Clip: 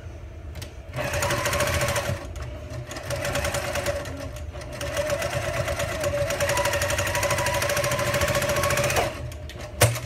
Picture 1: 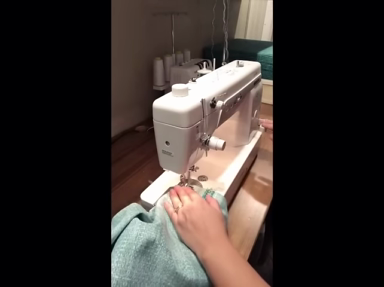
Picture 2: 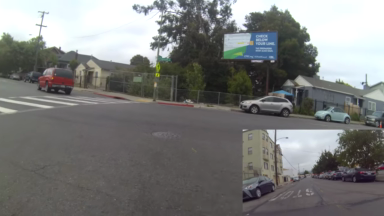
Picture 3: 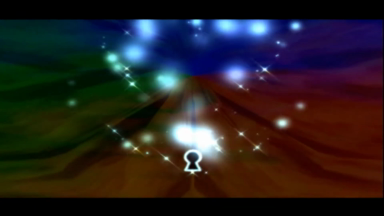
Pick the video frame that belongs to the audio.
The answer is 1